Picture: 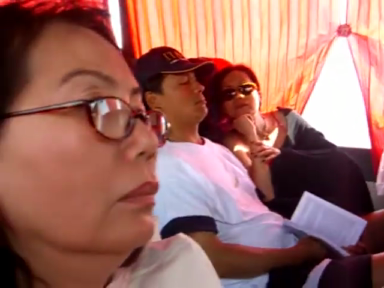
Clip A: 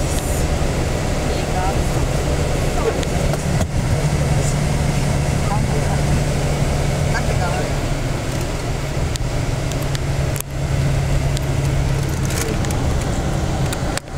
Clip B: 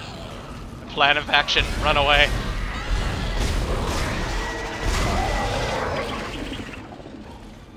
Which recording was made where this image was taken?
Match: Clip A